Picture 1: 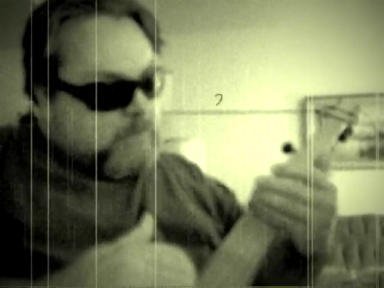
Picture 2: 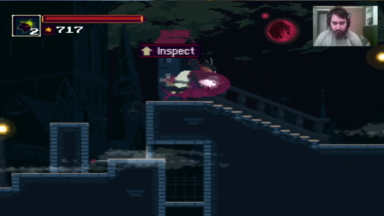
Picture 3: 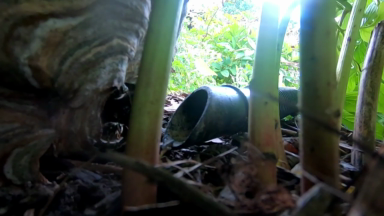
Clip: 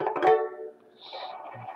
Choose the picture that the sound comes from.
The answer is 1